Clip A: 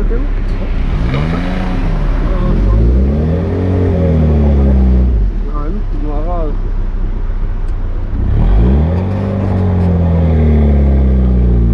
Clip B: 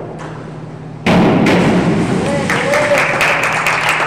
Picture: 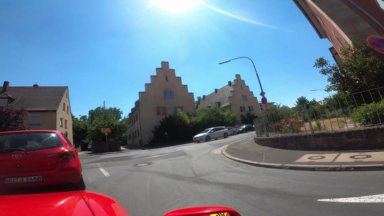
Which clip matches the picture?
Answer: A